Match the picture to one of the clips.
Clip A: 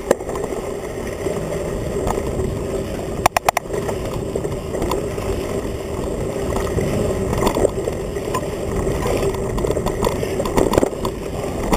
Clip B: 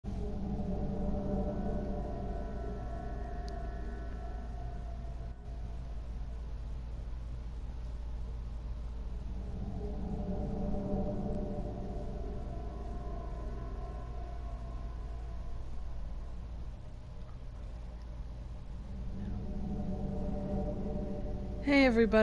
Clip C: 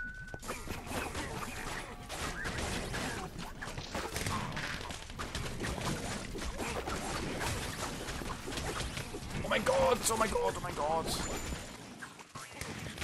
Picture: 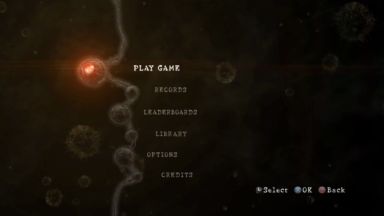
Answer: B